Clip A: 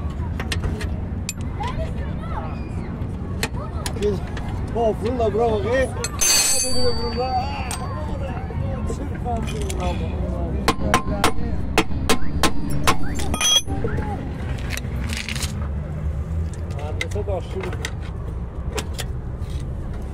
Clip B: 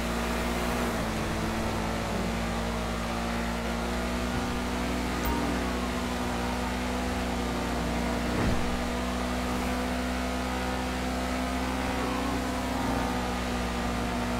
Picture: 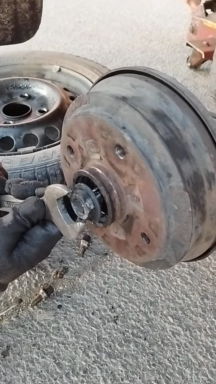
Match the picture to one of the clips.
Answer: A